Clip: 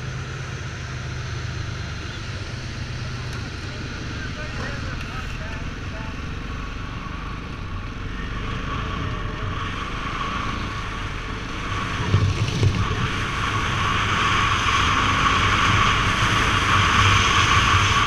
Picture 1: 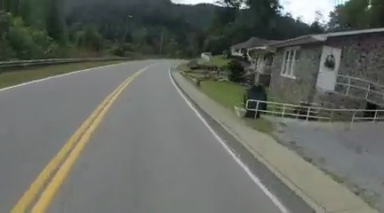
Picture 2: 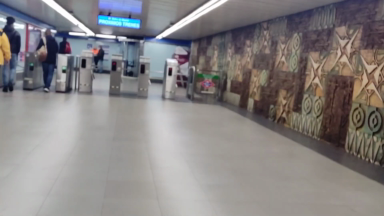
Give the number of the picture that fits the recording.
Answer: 1